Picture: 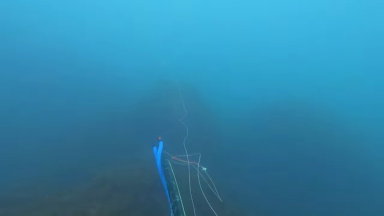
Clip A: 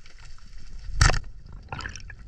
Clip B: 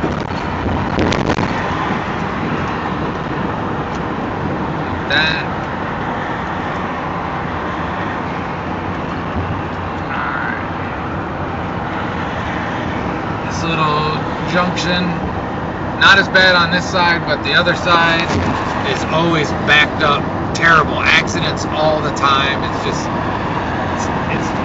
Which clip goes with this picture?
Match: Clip A